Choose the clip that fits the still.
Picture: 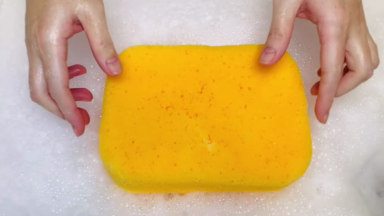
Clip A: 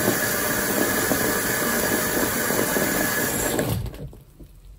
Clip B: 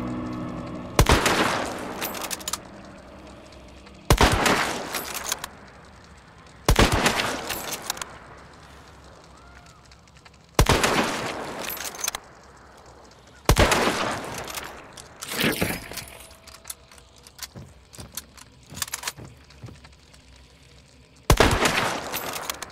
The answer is A